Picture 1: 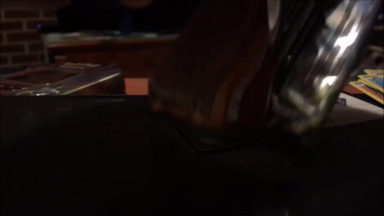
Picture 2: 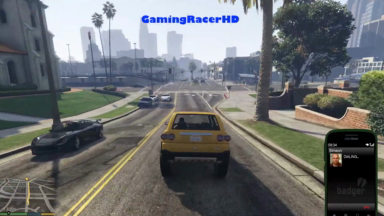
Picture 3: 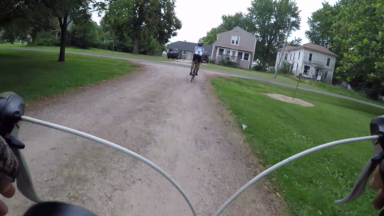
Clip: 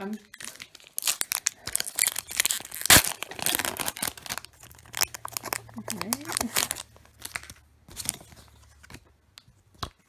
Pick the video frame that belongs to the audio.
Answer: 1